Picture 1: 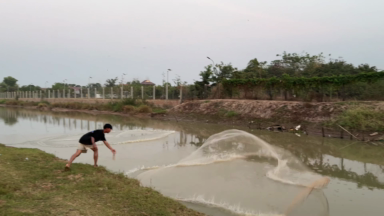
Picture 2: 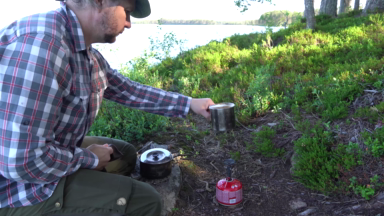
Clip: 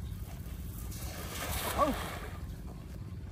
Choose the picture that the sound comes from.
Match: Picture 1